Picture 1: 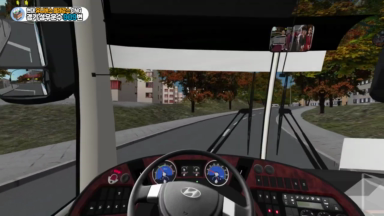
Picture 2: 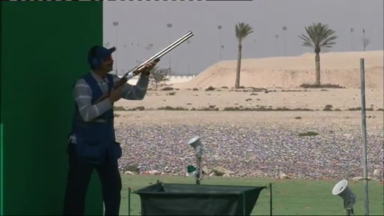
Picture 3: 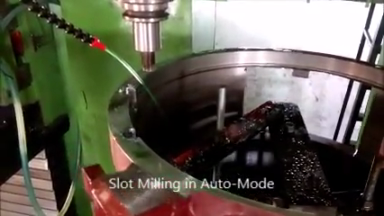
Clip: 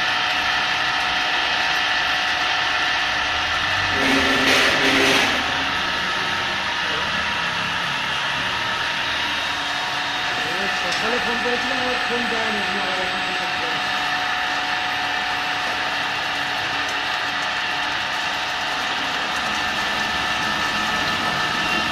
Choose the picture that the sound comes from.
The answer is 3